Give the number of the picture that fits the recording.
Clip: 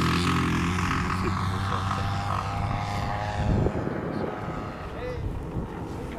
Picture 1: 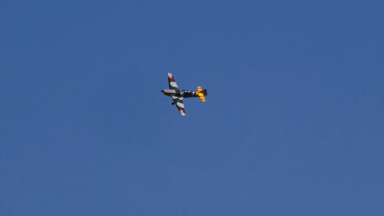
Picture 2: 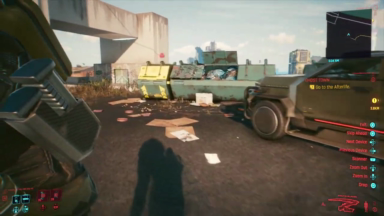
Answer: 1